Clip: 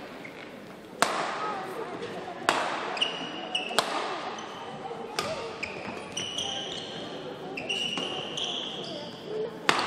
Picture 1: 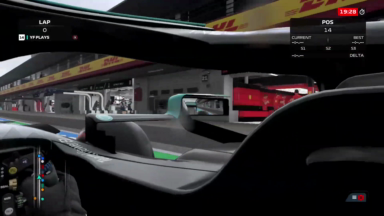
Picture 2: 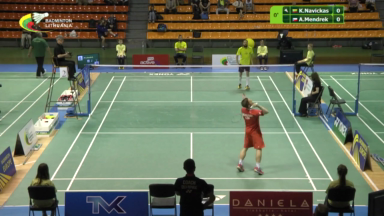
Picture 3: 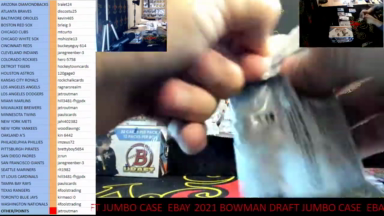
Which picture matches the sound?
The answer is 2